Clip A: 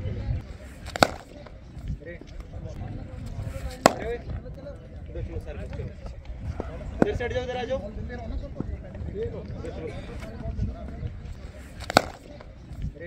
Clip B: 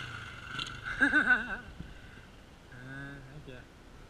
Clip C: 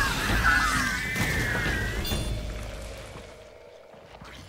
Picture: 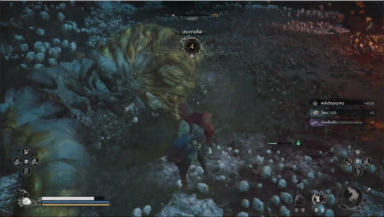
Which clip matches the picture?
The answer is C